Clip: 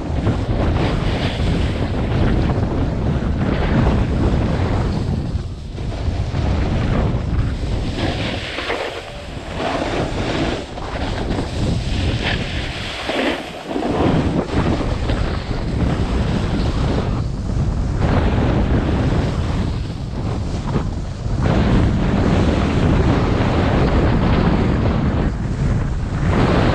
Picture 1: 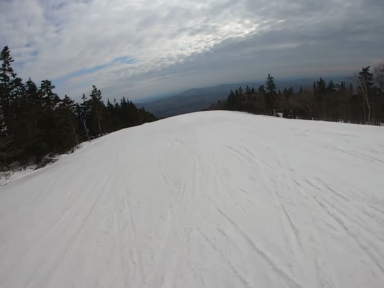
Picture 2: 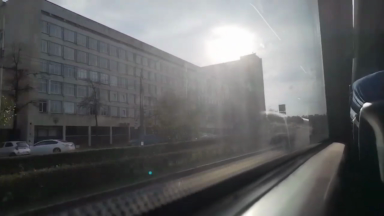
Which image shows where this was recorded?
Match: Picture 1